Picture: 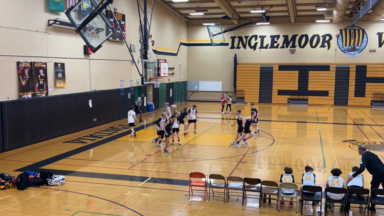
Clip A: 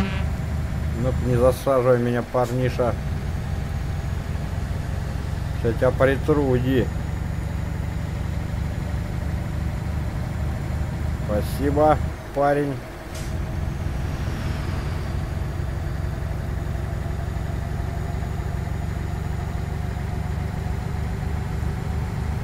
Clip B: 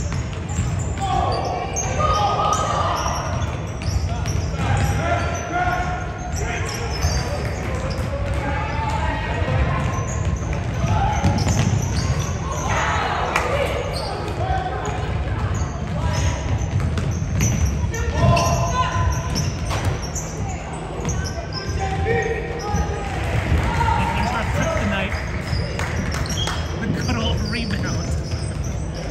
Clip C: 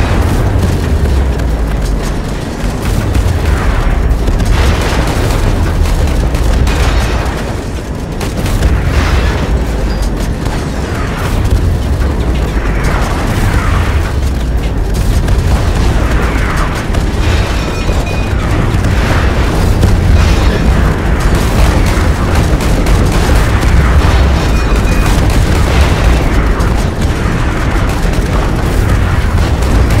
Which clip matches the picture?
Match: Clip B